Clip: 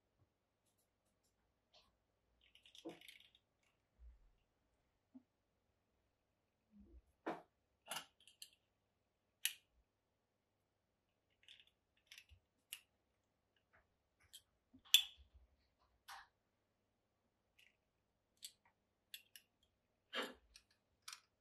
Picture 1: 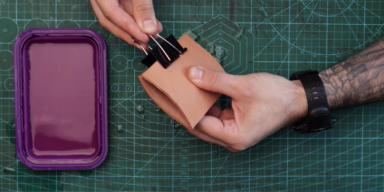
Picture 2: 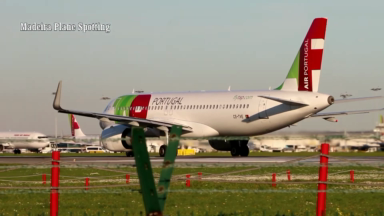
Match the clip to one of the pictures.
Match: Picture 1